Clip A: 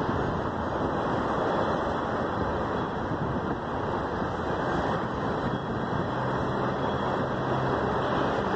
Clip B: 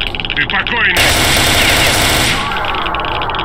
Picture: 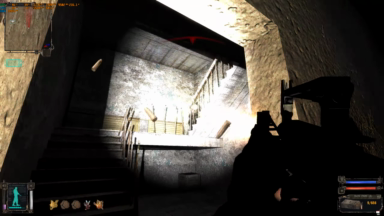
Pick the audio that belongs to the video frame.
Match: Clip B